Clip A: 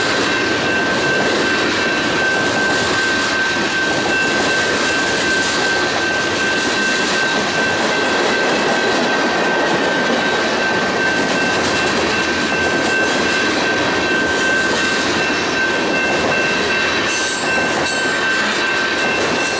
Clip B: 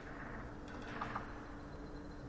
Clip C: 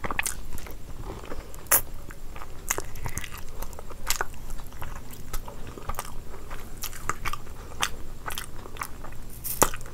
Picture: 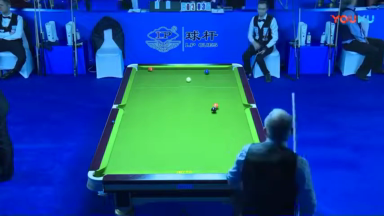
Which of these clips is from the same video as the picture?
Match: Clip B